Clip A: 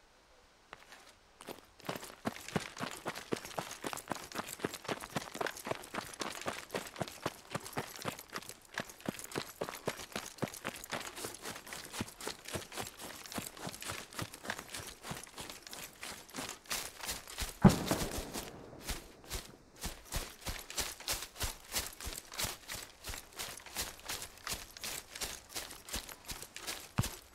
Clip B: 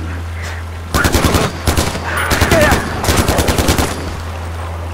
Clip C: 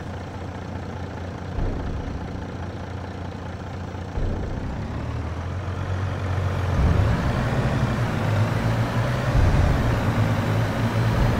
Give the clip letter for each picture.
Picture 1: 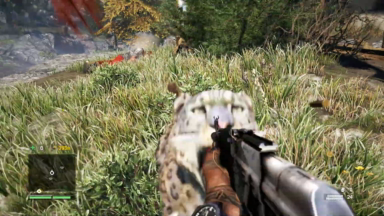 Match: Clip B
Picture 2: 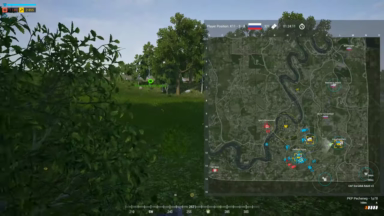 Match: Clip A